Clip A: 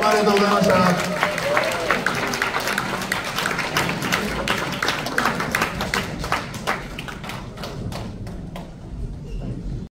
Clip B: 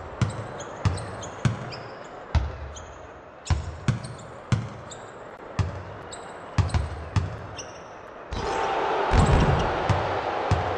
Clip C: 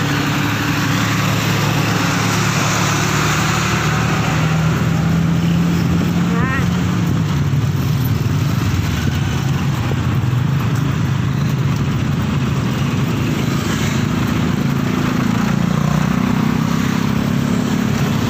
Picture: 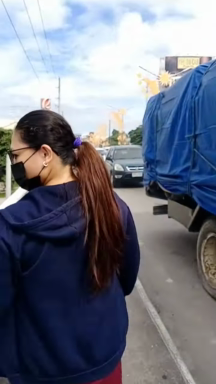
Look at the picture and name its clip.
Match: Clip C